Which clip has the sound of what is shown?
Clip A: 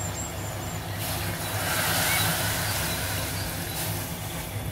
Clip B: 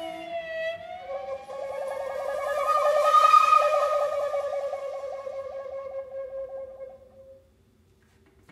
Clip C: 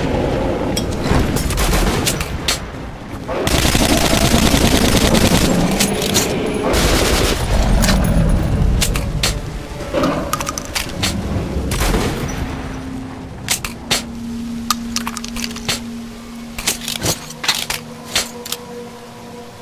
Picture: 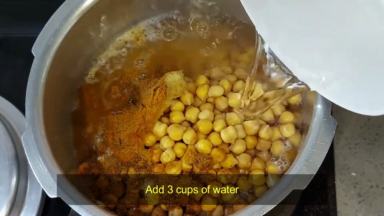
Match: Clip A